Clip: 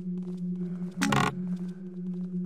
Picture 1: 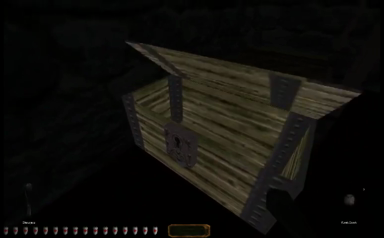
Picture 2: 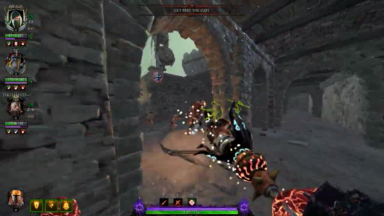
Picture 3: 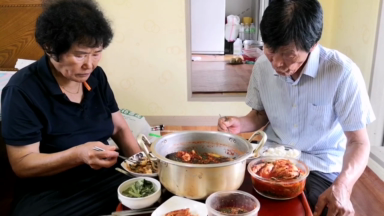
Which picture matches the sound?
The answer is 1